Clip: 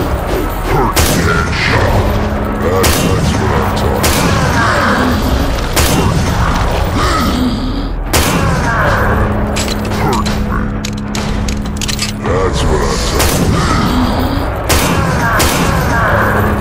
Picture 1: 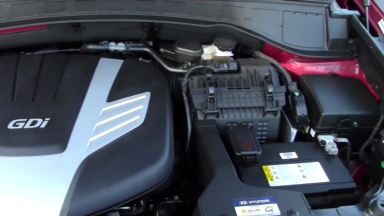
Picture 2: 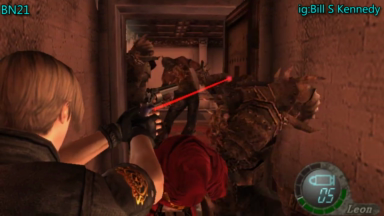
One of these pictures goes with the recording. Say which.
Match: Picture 2